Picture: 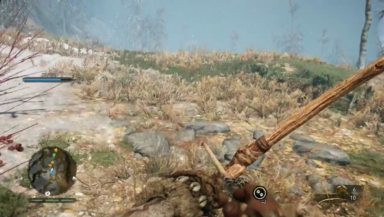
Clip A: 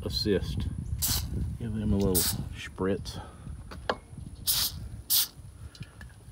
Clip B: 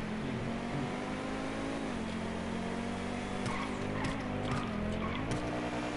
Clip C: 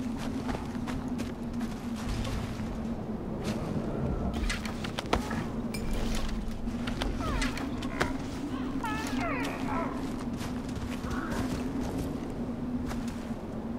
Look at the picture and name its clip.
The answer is C